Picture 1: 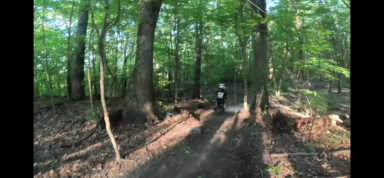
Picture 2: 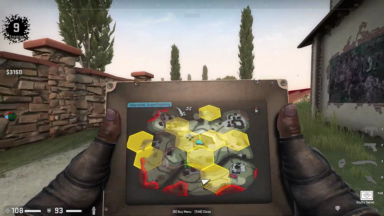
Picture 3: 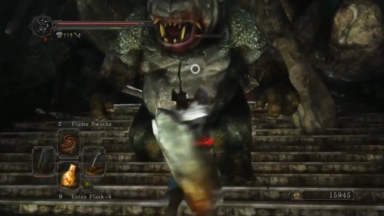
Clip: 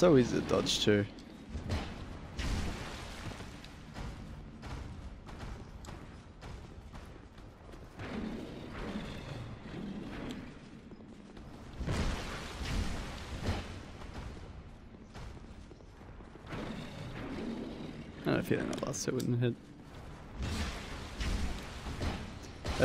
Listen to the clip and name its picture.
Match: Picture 3